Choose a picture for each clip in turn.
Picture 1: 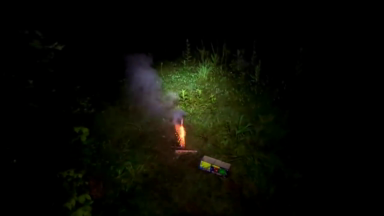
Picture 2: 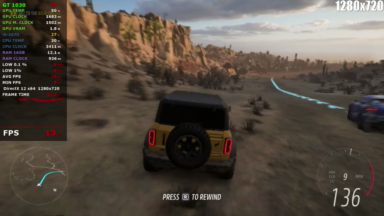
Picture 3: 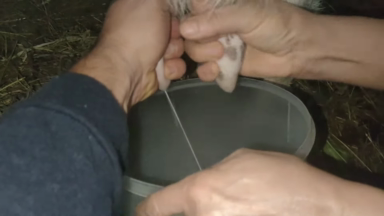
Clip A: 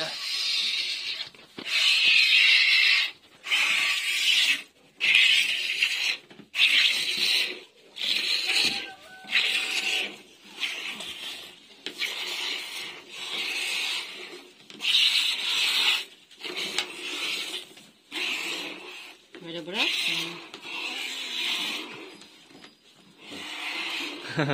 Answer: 3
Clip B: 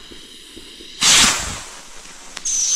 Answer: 1